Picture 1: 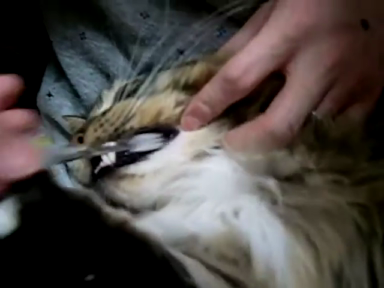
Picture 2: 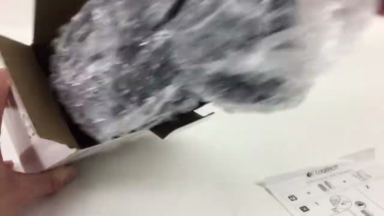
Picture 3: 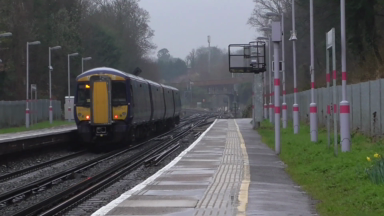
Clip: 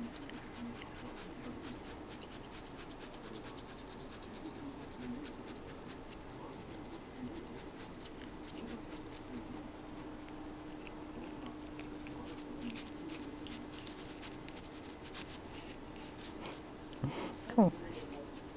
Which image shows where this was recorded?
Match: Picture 1